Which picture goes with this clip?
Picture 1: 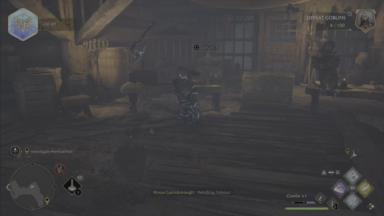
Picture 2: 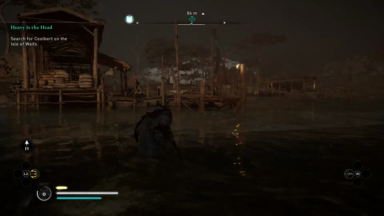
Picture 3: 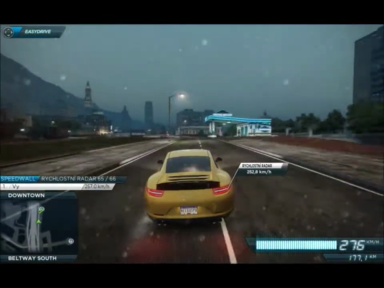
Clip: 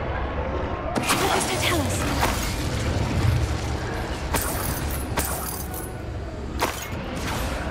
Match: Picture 1